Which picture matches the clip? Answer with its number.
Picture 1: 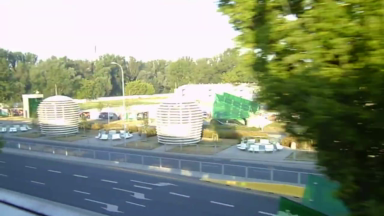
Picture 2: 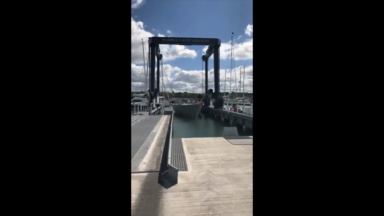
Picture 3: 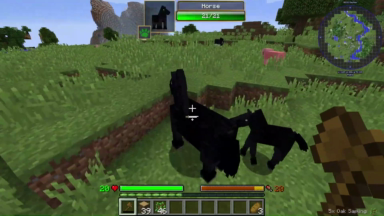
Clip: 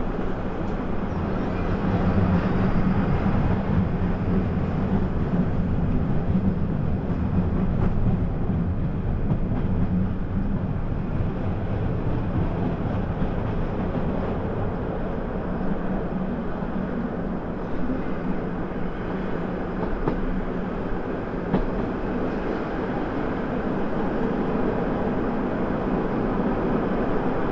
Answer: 1